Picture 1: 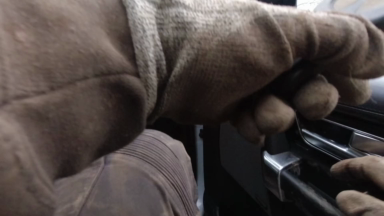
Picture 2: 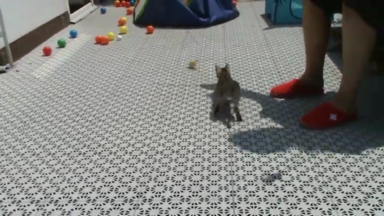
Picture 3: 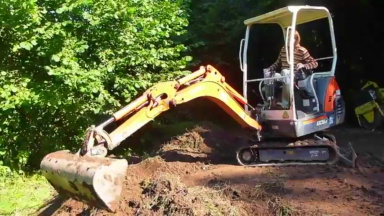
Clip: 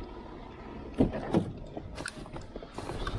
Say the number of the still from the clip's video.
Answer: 1